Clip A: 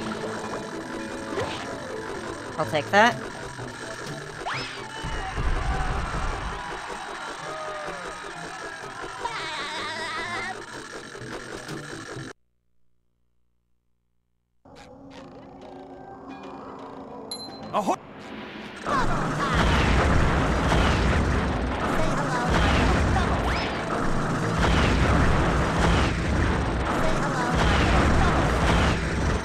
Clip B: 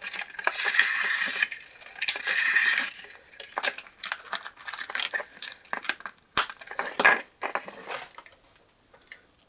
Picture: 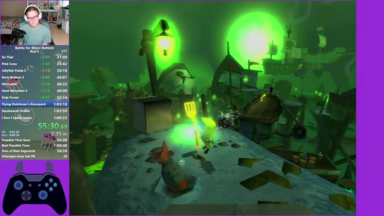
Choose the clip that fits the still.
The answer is A